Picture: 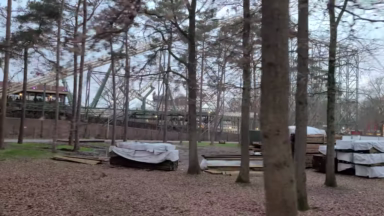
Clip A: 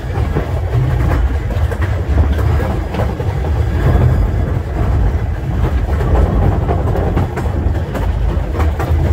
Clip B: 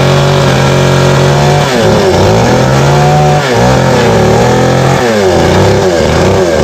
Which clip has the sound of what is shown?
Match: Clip A